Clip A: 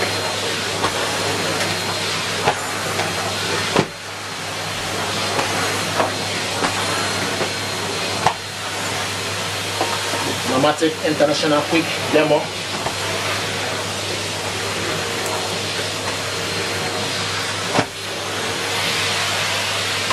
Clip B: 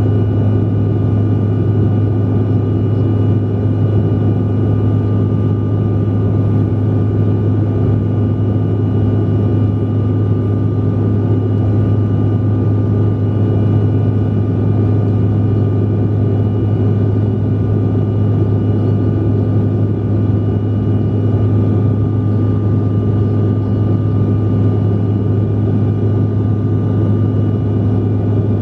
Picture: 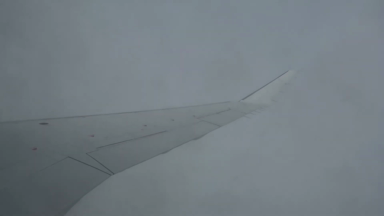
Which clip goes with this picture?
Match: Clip B